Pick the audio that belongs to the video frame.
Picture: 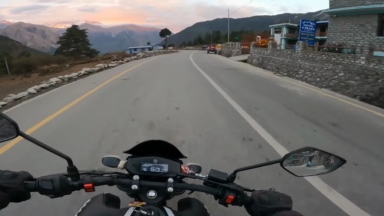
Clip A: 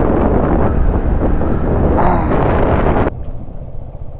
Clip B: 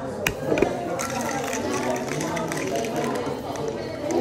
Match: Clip A